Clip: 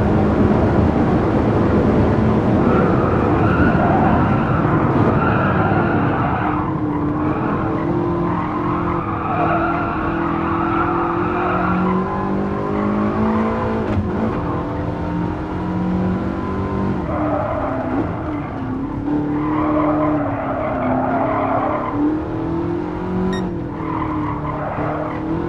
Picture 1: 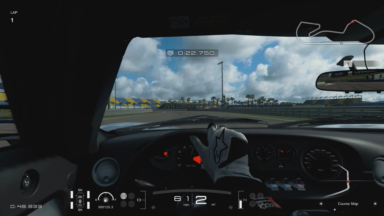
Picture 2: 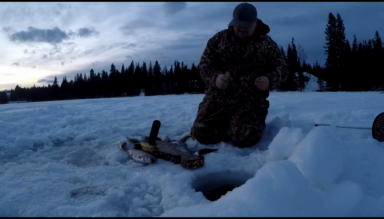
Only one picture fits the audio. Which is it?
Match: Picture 1